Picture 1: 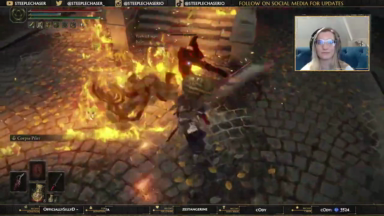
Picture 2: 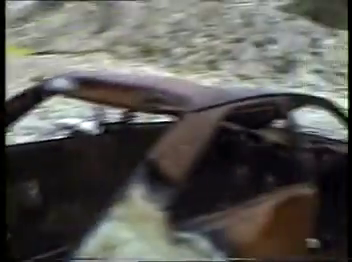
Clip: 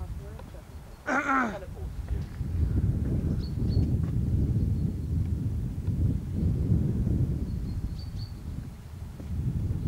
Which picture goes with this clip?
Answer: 2